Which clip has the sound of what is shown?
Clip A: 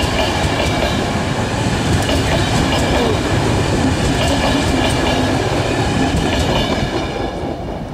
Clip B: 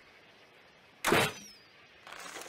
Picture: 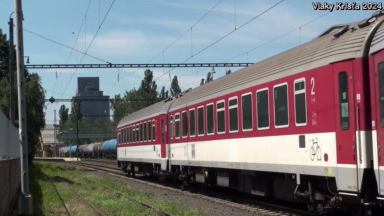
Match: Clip A